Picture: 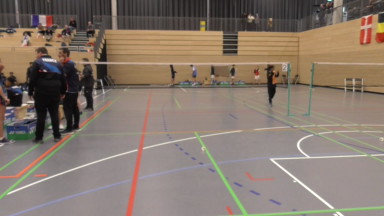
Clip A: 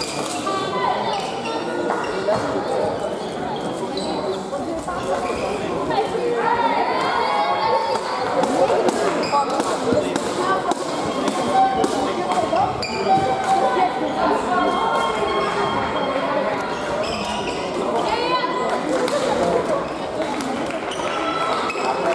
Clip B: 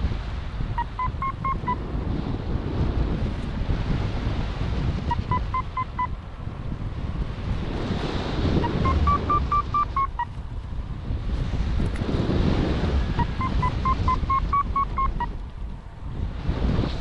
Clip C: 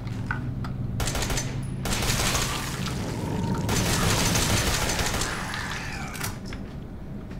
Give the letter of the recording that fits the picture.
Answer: A